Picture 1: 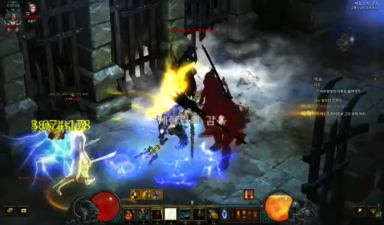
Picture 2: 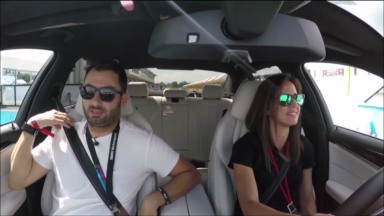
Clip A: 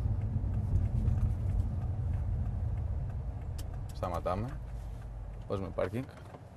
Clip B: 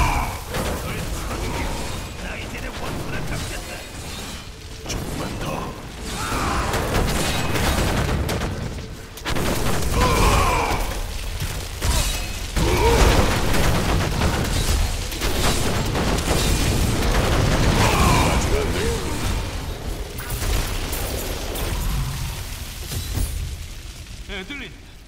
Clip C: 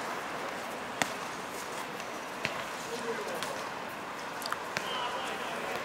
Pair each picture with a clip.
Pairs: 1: B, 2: A